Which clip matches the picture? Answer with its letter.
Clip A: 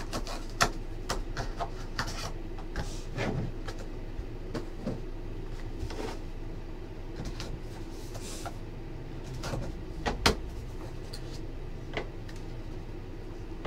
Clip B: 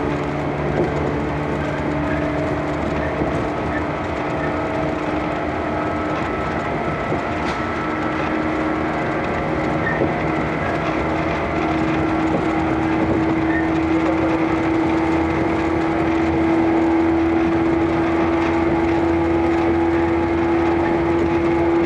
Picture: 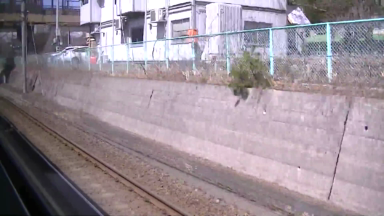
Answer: B